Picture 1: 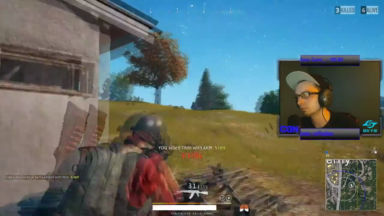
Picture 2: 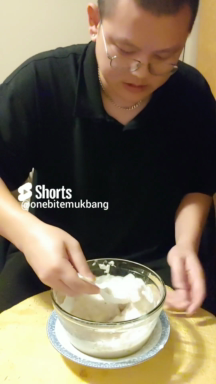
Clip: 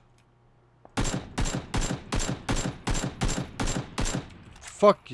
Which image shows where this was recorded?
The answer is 1